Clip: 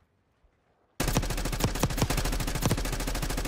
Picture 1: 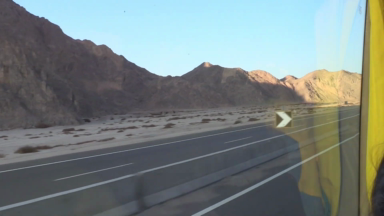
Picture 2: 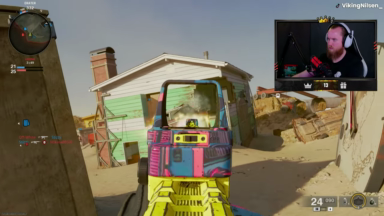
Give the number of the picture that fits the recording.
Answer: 2